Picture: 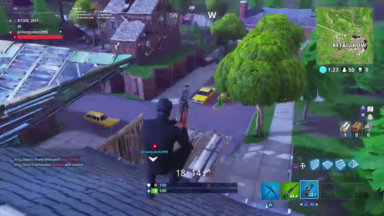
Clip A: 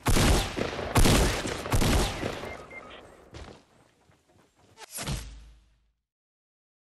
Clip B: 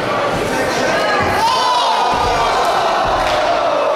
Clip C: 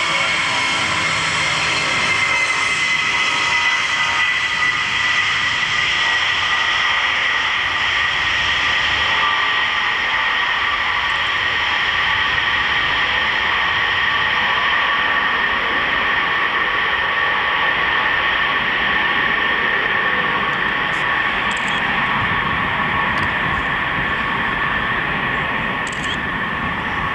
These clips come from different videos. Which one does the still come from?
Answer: A